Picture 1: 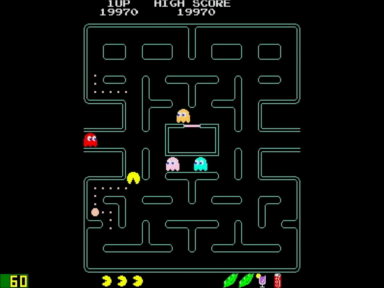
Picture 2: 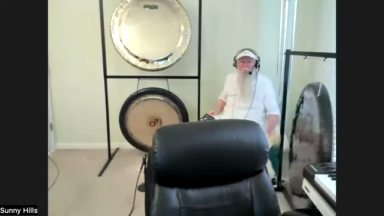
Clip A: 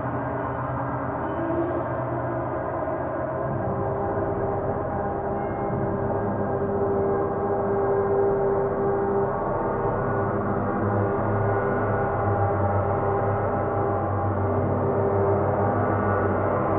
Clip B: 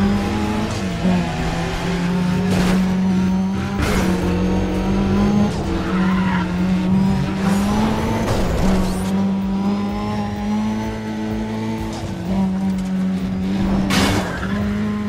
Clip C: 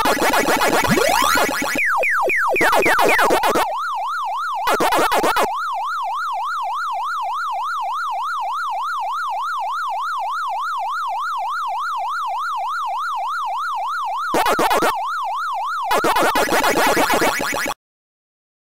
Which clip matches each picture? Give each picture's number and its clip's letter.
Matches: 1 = C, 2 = A